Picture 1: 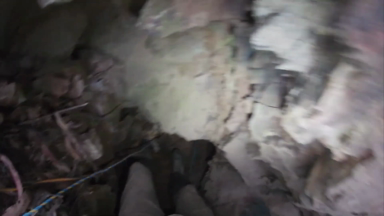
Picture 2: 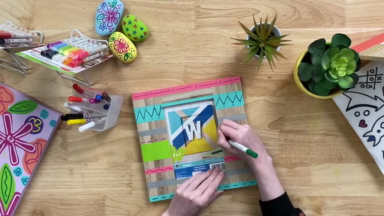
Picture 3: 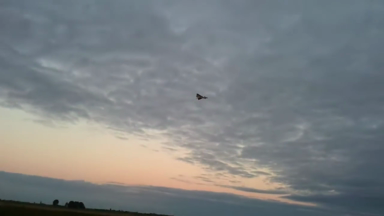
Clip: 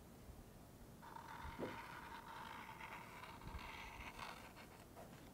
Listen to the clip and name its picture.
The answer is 2